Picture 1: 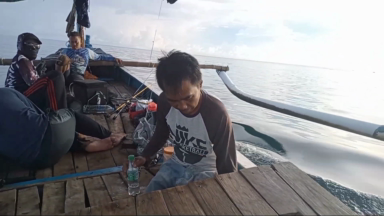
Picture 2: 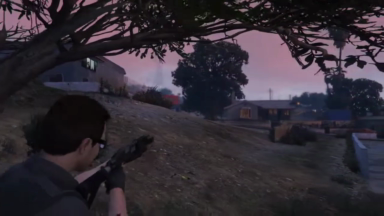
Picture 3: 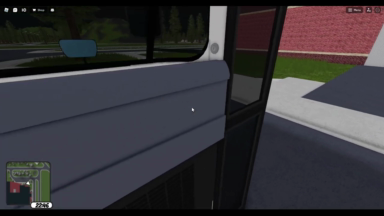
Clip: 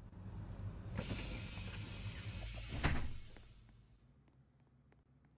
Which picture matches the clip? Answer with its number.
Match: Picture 3